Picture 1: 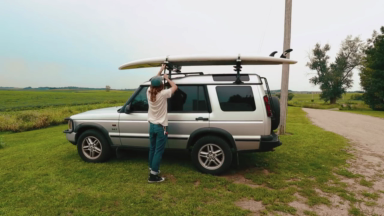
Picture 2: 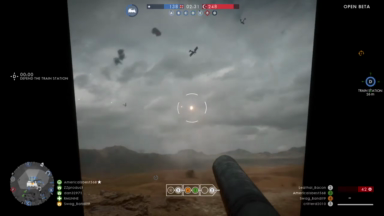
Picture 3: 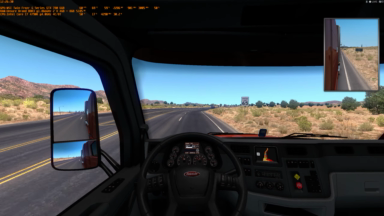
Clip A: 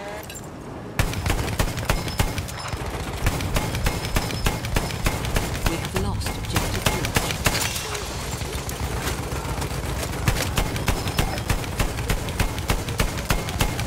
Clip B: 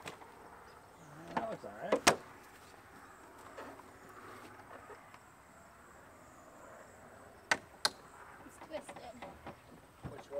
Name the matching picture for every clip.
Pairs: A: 2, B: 1